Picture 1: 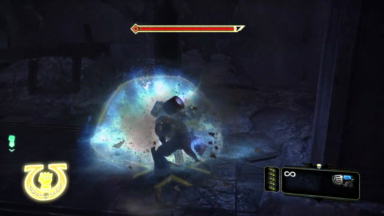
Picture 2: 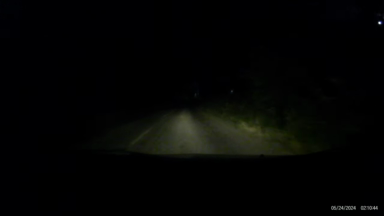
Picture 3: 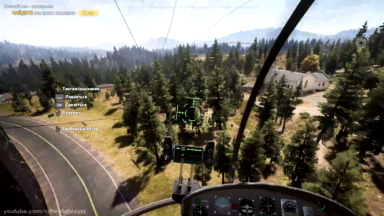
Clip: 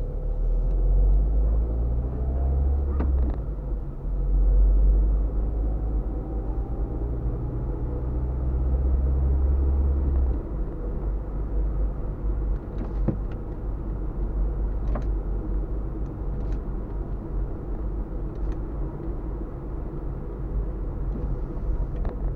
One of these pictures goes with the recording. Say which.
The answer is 2